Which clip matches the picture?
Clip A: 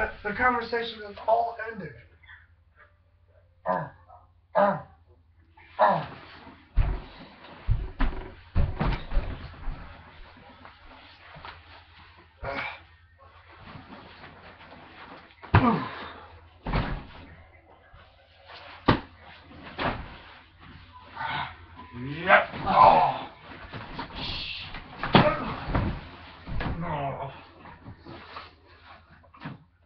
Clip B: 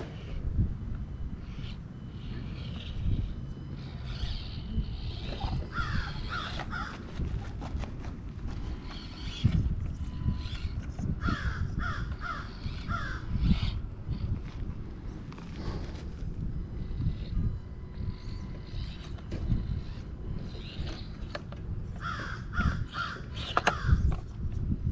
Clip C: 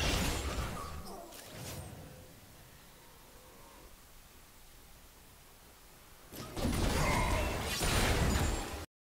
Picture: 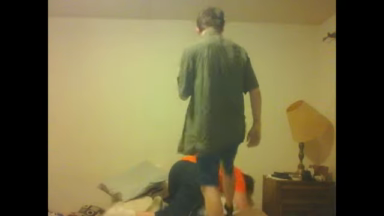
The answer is A